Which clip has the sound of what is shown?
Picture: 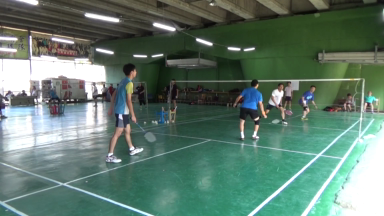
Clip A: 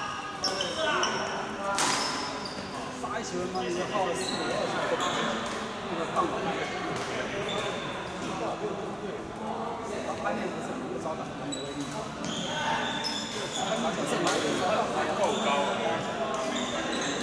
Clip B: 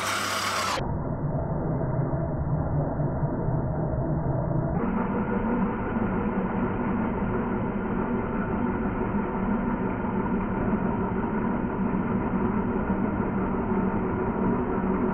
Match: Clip A